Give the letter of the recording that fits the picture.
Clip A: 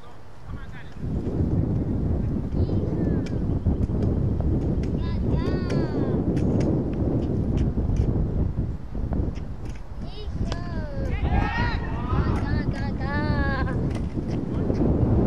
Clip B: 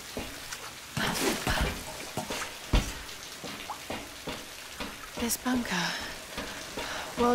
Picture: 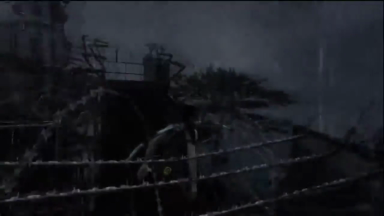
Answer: B